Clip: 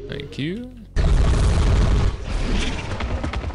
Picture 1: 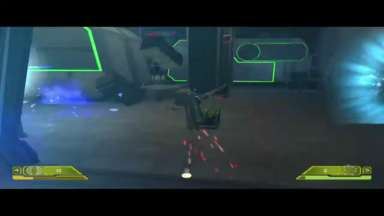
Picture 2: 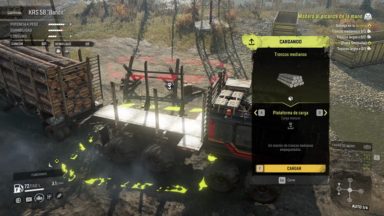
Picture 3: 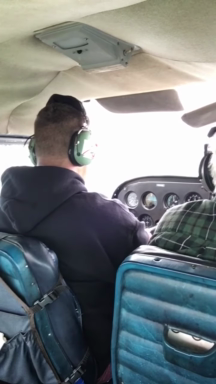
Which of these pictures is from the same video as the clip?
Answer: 1